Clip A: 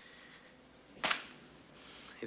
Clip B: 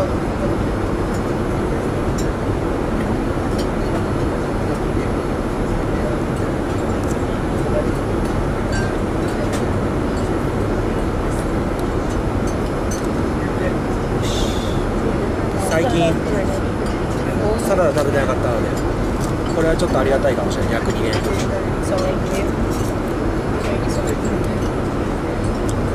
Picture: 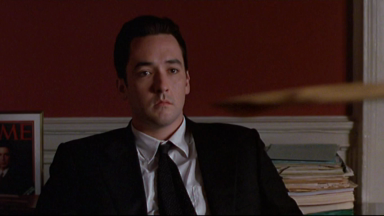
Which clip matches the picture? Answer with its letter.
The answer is A